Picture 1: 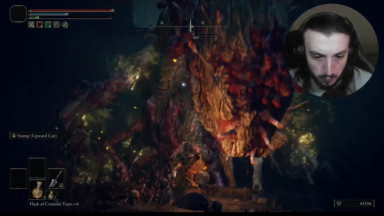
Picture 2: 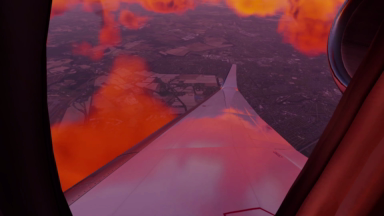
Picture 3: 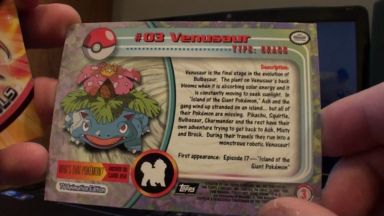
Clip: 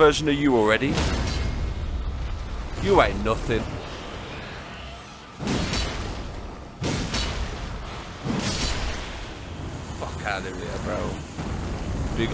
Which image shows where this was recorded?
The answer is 1